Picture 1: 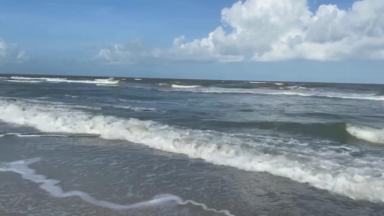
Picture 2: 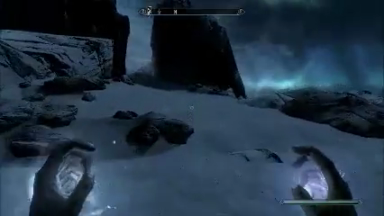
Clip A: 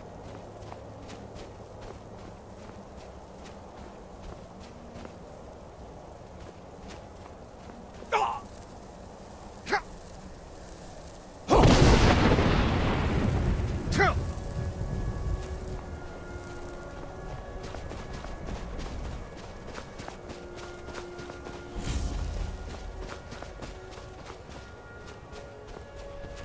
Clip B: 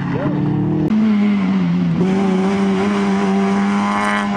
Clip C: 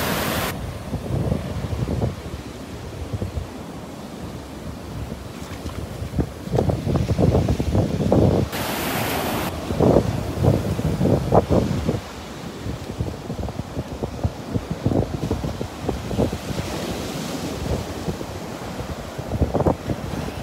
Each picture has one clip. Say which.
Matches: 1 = C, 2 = A